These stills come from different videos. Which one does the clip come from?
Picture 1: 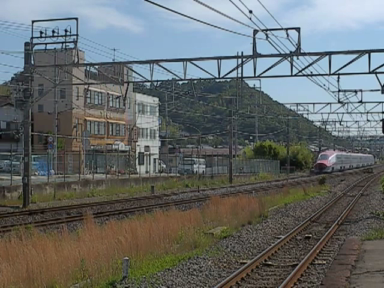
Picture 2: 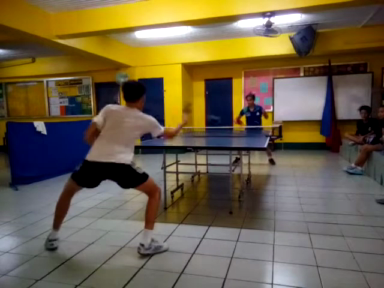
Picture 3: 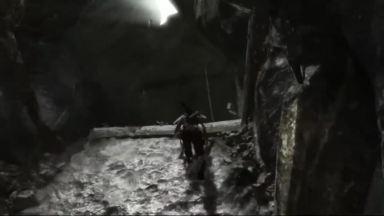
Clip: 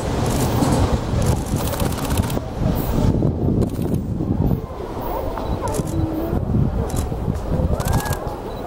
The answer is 1